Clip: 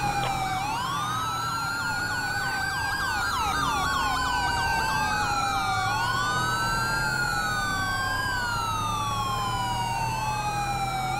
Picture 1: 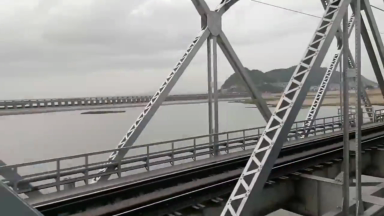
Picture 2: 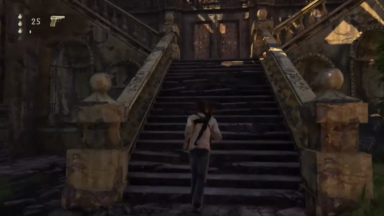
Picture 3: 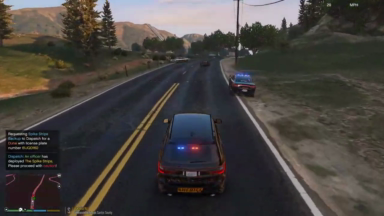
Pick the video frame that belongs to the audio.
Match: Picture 3